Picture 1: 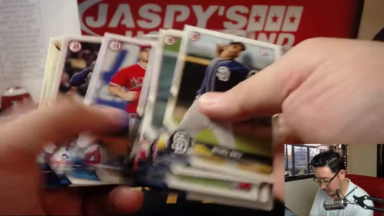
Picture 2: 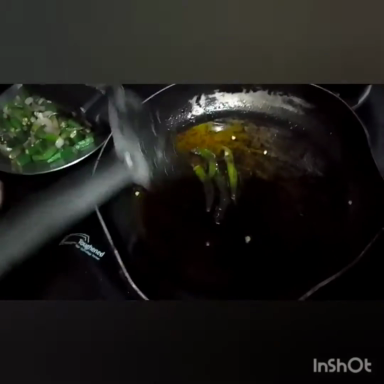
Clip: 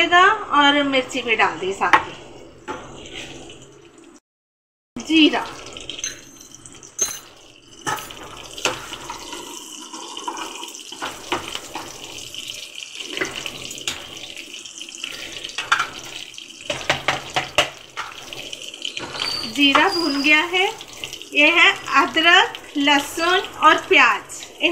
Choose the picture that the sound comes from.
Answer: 2